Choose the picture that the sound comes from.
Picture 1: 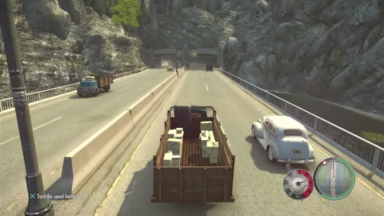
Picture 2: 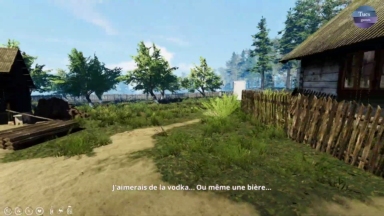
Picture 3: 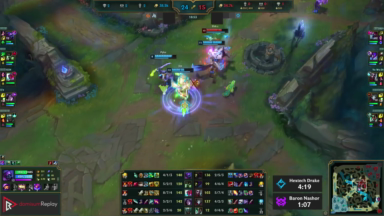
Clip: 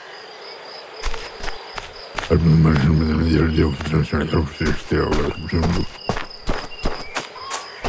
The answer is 2